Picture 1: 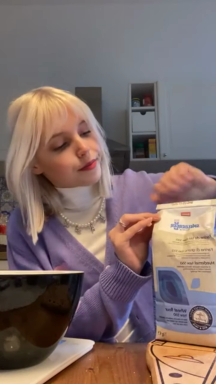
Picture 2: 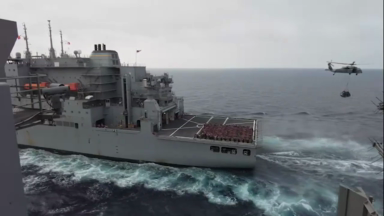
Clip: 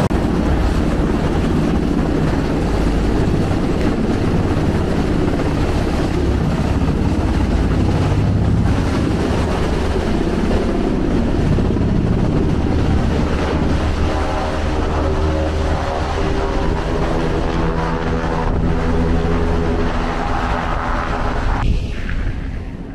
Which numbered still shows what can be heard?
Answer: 2